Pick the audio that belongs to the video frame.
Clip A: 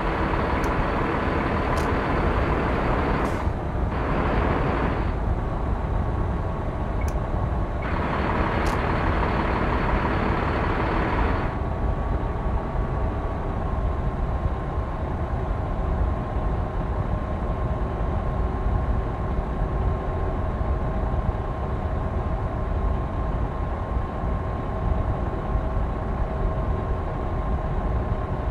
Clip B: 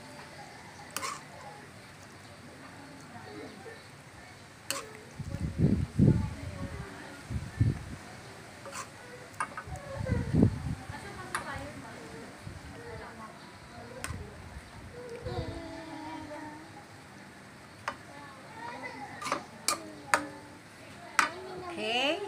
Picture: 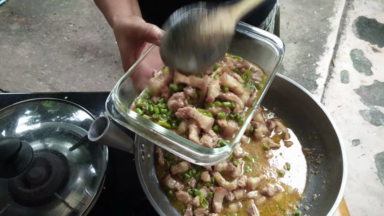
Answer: B